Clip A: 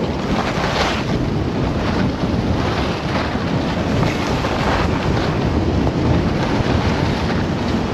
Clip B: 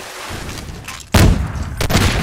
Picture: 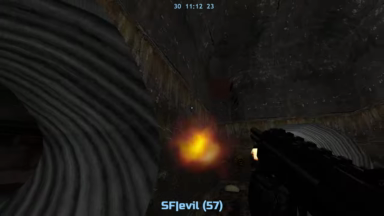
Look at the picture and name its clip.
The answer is B